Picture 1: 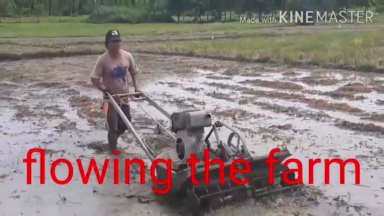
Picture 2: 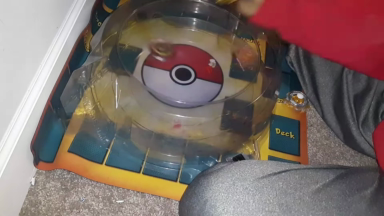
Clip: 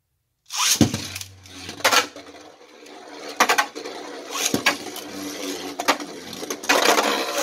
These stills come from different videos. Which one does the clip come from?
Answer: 2